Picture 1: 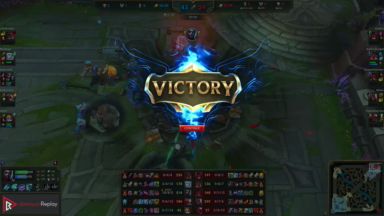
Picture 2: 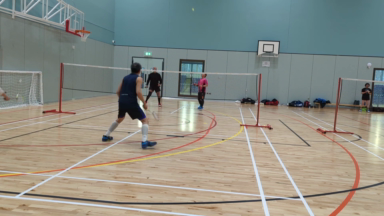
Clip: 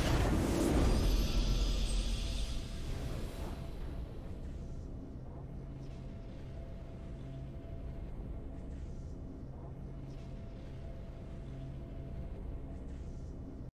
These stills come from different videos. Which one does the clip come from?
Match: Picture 1